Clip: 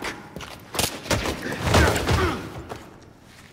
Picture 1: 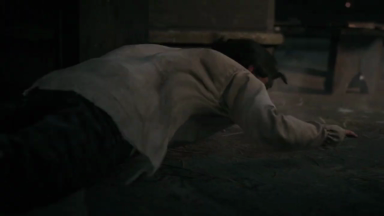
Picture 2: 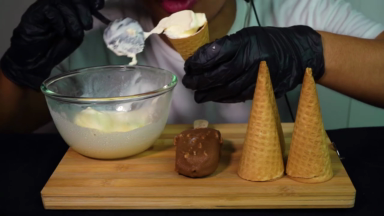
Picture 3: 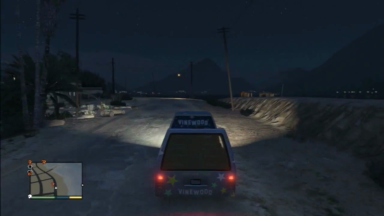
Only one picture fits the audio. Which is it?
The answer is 1